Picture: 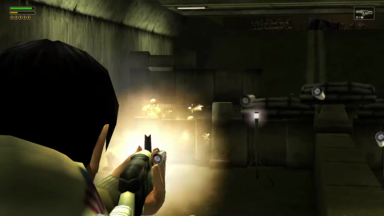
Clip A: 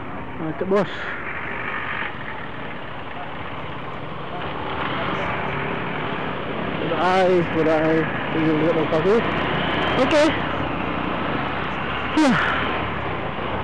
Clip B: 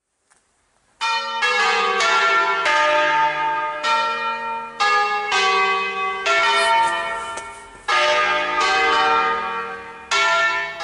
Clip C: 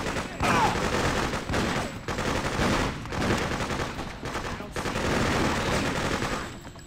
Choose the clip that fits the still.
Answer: C